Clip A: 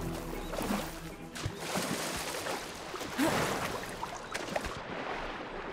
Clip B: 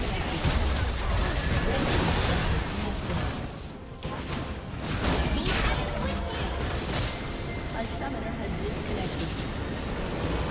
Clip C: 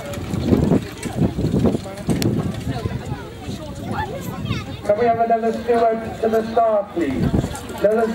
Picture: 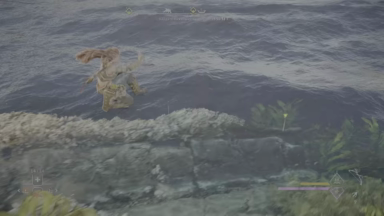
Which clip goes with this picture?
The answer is A